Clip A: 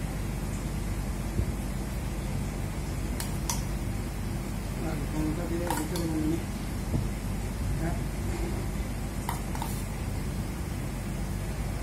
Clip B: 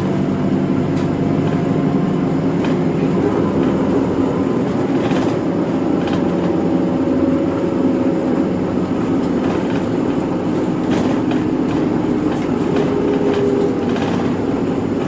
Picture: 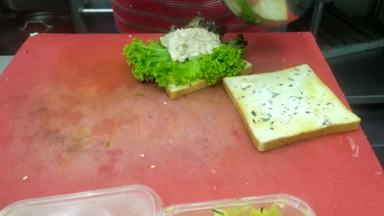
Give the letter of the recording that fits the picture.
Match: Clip A